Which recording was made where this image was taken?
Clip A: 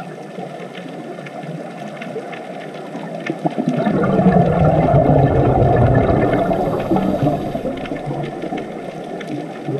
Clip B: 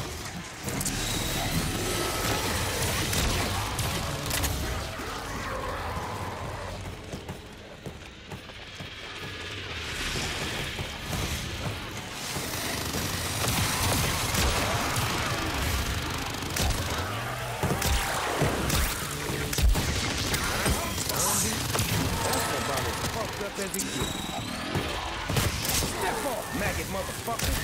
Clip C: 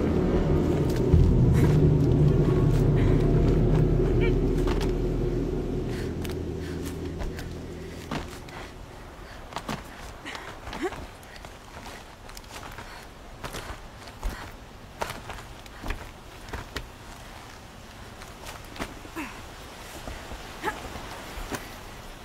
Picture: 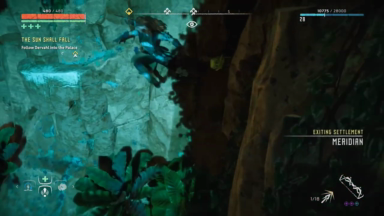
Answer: C